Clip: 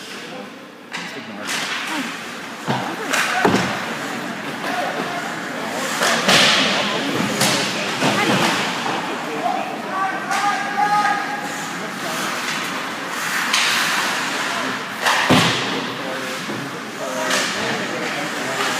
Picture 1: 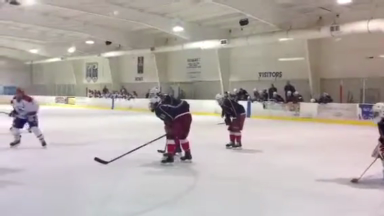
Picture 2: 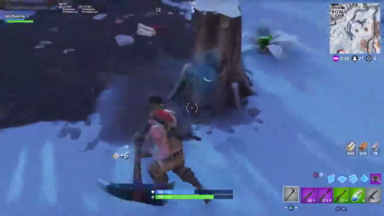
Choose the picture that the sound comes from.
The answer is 1